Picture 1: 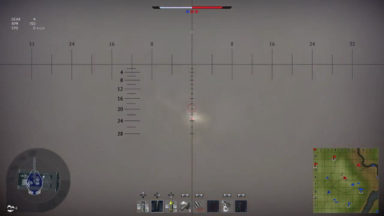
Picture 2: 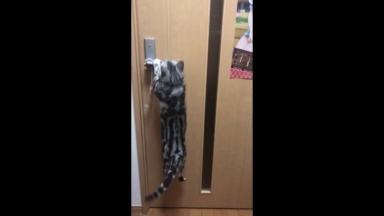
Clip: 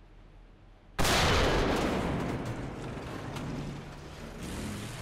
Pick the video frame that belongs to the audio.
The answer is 1